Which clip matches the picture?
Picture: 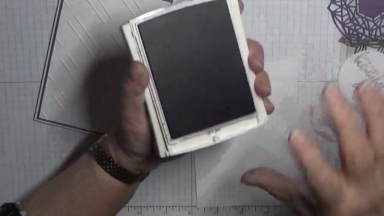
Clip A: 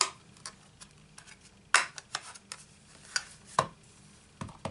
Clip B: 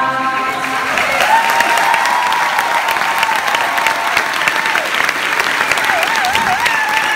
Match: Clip A